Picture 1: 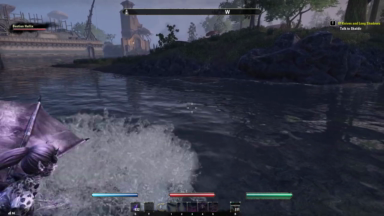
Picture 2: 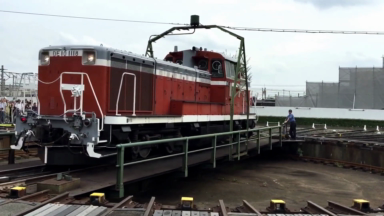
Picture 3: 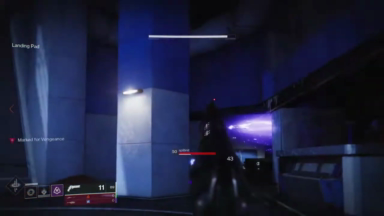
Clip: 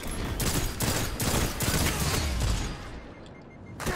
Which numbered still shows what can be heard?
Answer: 3